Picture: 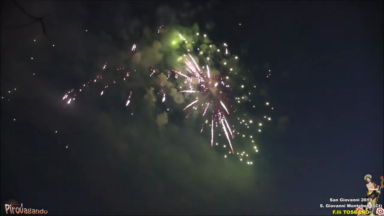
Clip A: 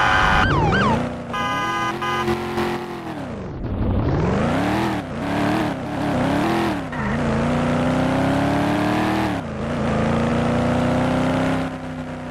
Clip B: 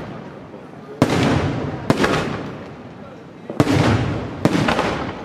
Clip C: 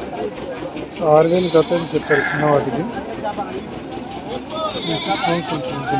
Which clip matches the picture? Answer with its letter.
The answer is B